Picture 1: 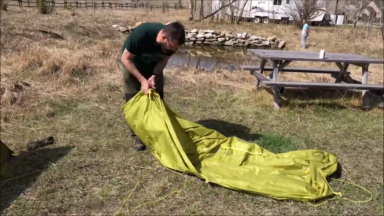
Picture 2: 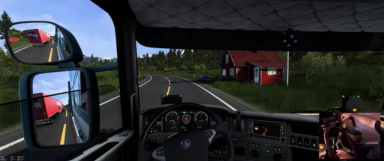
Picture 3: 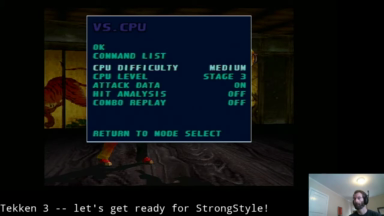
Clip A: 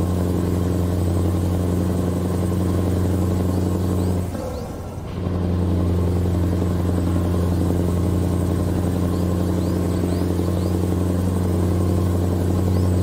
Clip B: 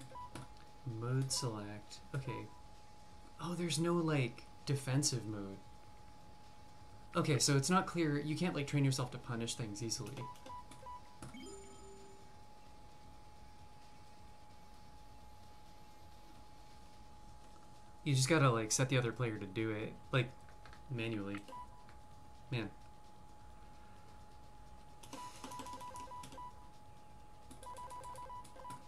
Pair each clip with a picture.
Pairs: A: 2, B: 3